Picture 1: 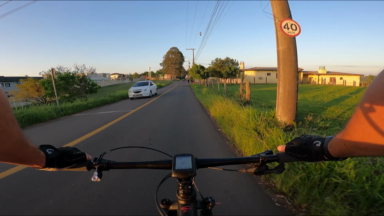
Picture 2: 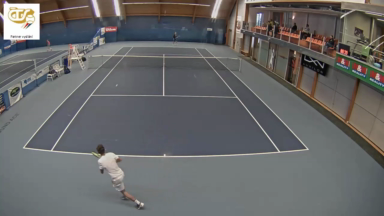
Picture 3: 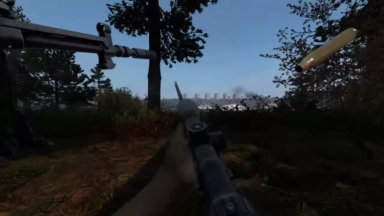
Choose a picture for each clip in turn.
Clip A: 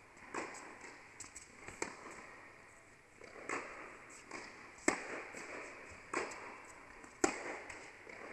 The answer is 2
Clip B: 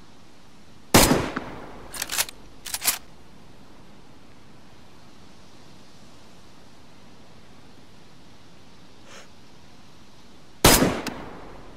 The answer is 3